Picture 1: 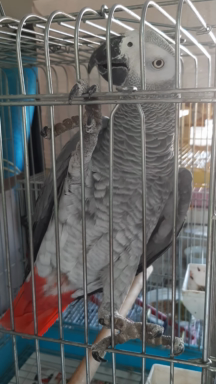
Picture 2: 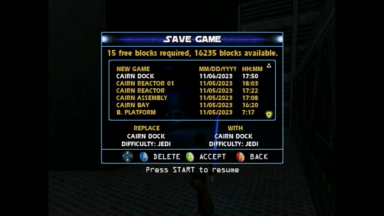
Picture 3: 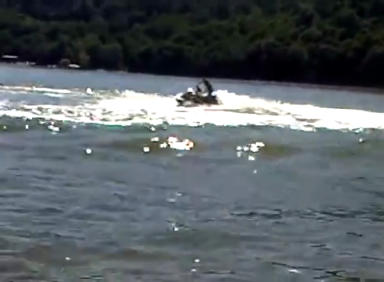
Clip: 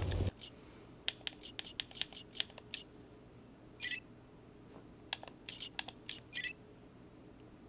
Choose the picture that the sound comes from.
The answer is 2